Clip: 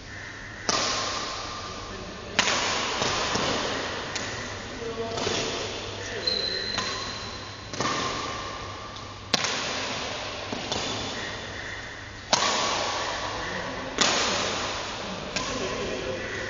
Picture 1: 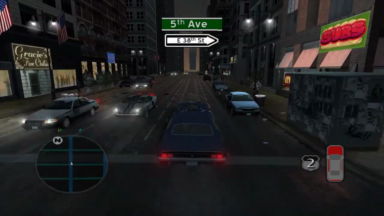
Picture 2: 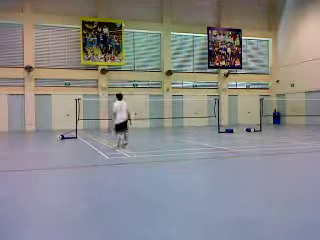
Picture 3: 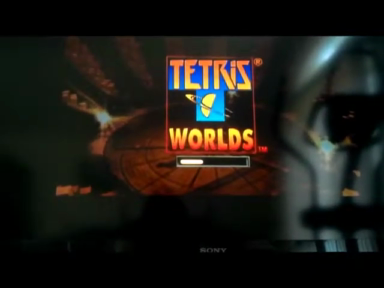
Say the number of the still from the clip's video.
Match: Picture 2